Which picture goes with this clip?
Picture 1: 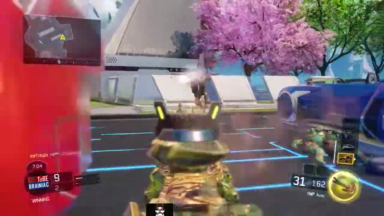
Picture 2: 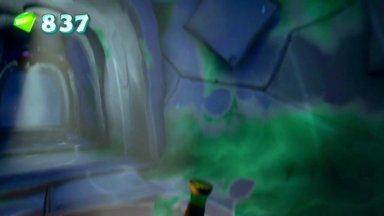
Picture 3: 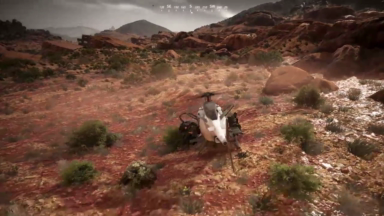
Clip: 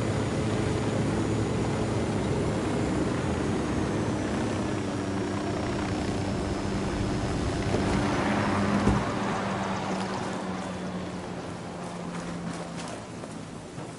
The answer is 3